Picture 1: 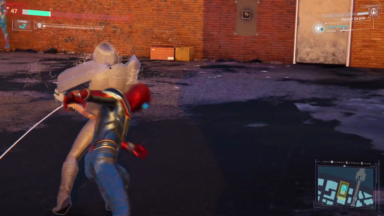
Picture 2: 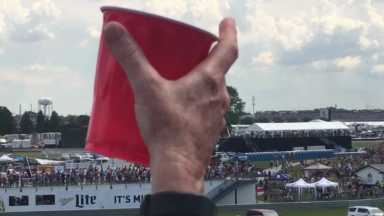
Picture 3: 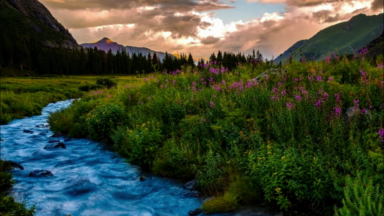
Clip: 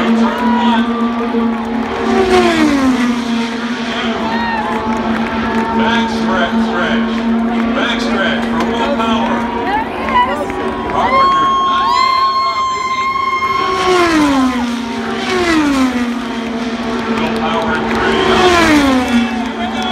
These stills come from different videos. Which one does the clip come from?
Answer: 2